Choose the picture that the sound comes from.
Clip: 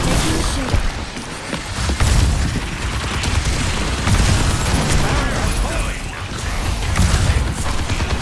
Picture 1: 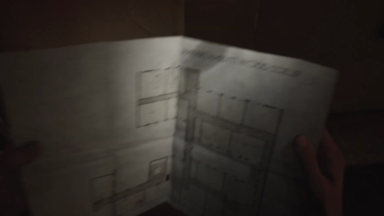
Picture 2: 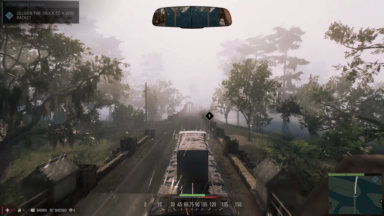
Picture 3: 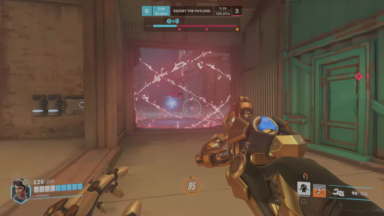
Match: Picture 3